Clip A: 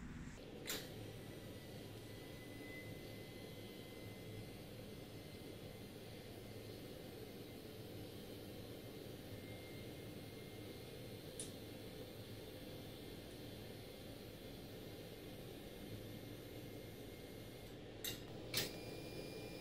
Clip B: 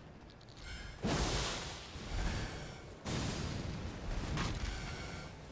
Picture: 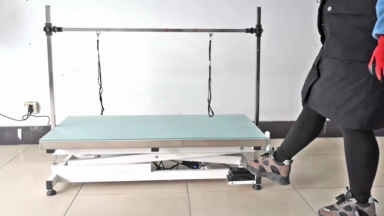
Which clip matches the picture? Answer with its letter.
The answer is A